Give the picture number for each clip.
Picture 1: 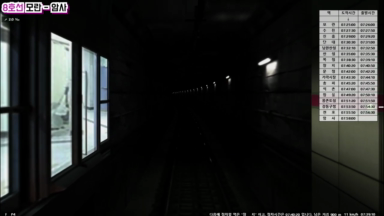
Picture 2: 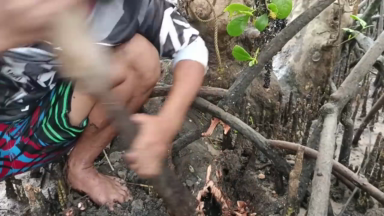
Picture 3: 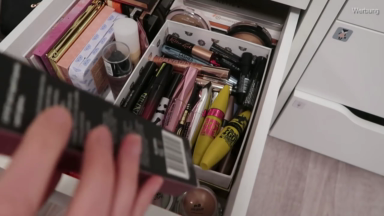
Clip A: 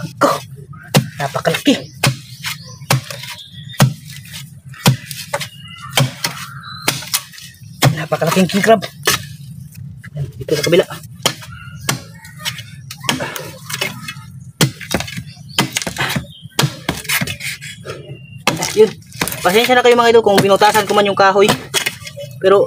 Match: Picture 2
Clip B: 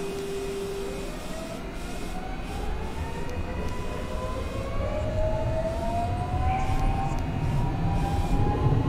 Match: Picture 1